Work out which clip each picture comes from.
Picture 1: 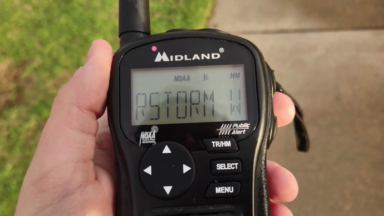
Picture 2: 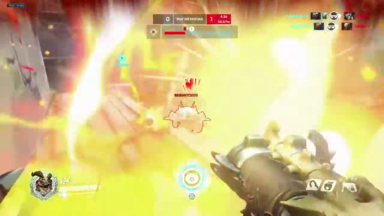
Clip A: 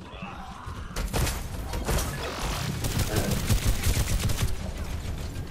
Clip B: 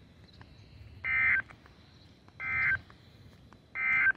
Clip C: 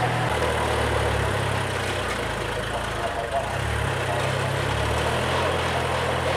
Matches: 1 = B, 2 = A